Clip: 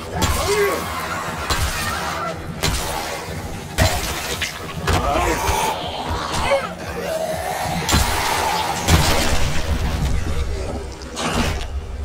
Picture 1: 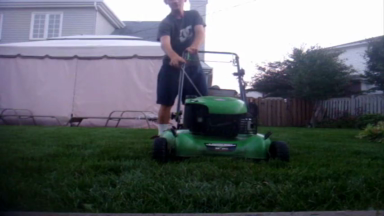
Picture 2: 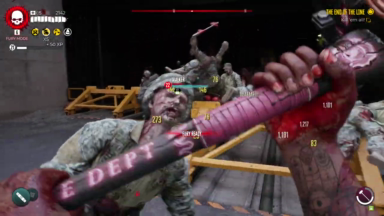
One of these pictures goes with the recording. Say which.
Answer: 2